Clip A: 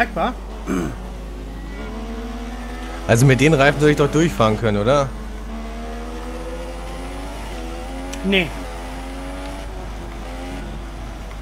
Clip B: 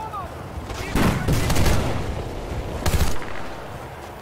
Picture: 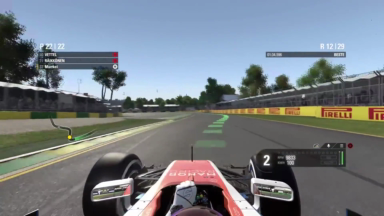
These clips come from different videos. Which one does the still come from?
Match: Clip A